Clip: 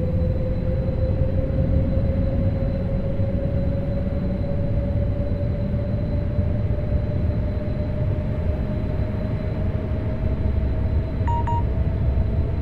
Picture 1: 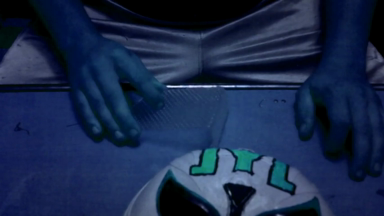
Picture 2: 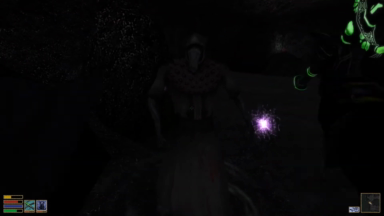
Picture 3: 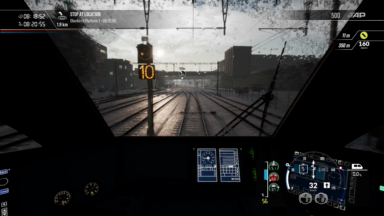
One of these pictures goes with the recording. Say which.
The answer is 3